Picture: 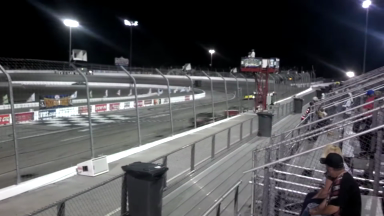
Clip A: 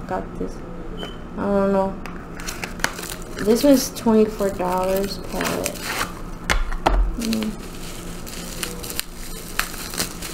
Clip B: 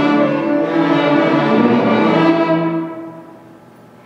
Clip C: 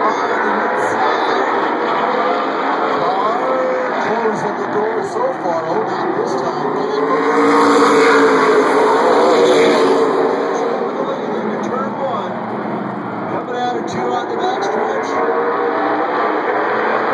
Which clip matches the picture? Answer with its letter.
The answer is C